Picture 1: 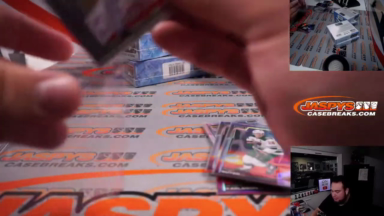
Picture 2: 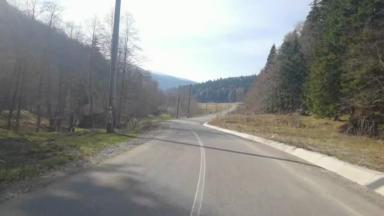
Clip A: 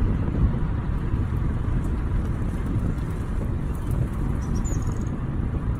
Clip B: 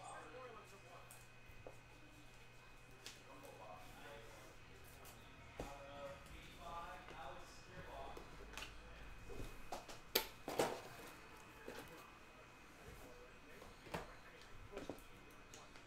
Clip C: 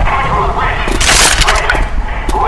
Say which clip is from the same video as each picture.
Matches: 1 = B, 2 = A